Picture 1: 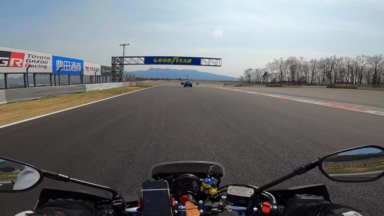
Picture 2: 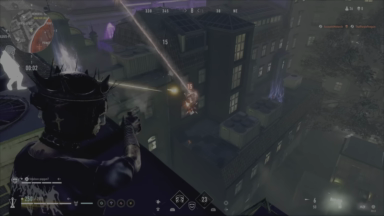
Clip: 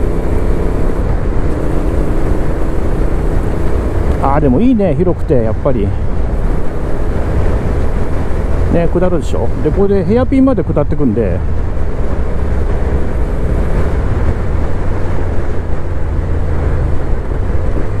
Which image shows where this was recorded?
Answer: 1